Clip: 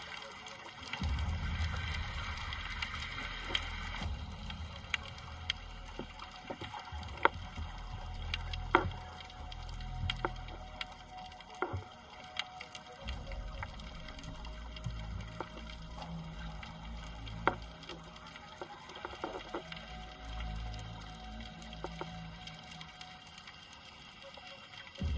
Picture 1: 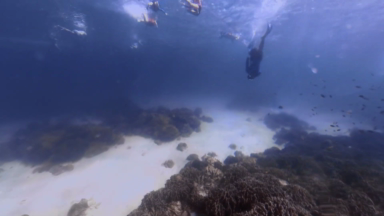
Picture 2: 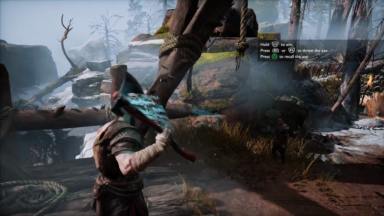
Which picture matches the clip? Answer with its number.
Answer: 1